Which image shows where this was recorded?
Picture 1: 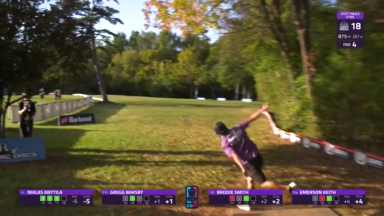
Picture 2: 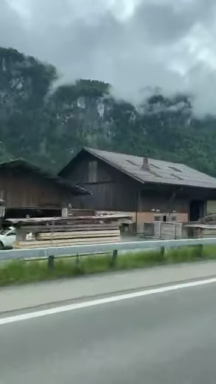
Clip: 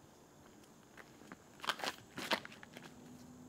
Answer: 1